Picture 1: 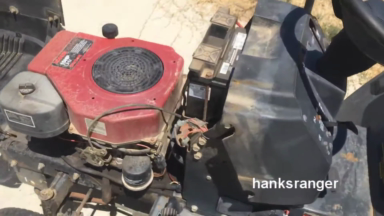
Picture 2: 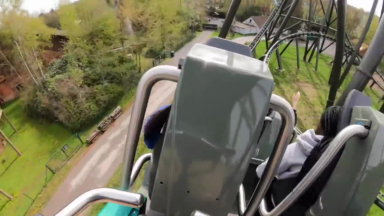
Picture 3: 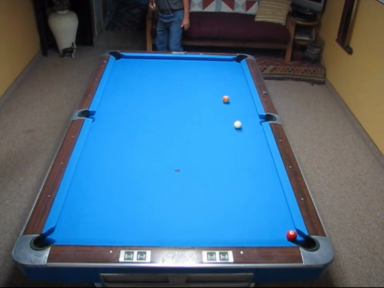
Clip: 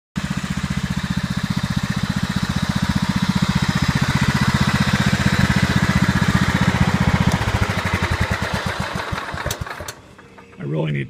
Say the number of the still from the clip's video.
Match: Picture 1